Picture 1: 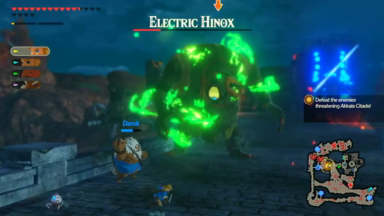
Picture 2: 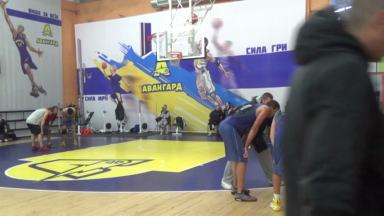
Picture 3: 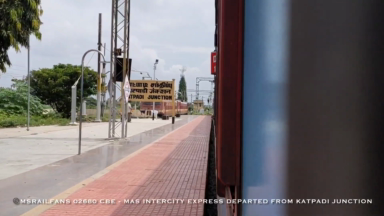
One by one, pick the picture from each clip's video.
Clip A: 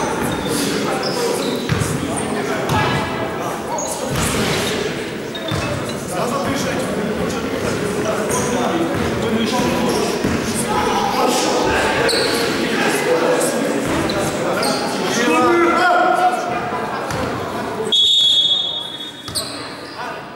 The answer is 2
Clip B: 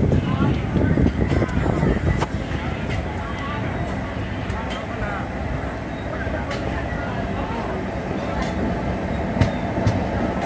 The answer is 3